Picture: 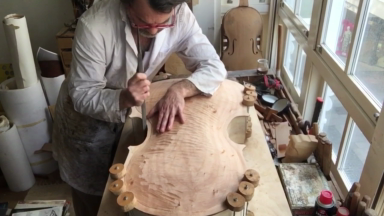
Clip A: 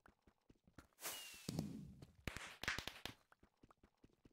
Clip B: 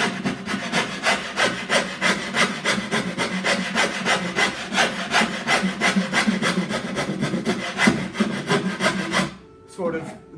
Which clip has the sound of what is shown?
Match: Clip B